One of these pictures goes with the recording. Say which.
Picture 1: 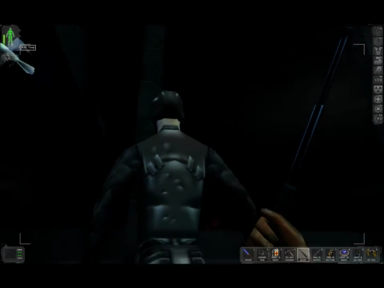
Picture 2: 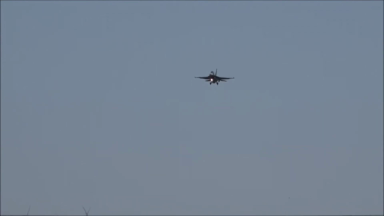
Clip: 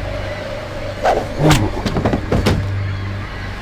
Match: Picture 1